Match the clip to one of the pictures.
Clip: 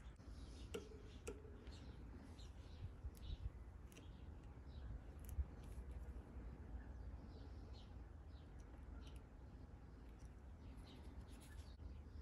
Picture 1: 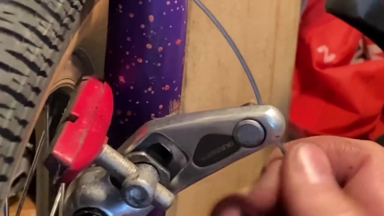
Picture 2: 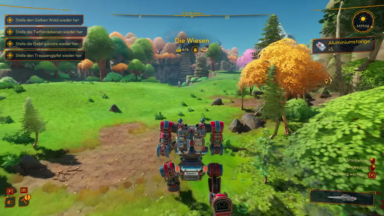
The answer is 1